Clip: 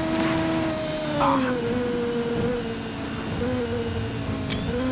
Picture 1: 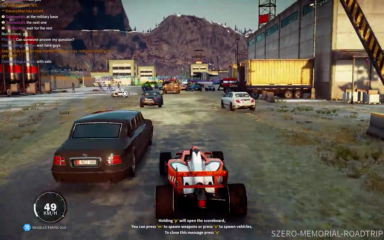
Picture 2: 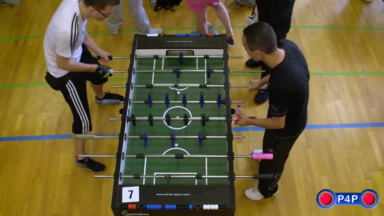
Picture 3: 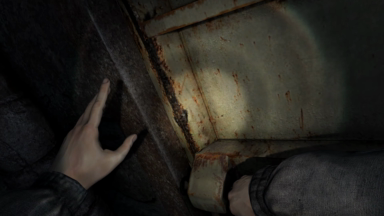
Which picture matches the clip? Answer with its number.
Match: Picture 1